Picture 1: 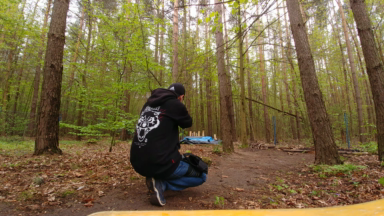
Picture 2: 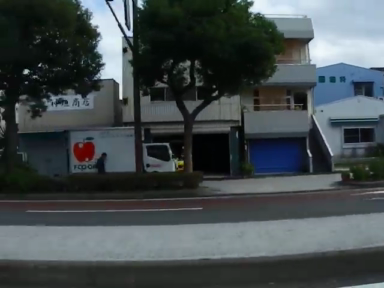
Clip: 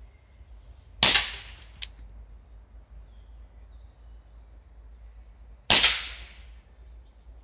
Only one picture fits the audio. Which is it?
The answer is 1